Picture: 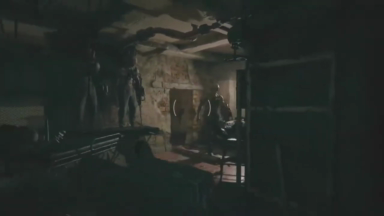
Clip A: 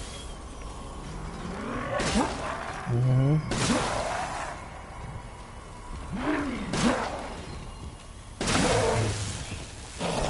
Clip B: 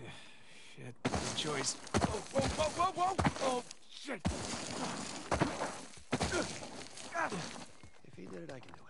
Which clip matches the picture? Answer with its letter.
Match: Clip A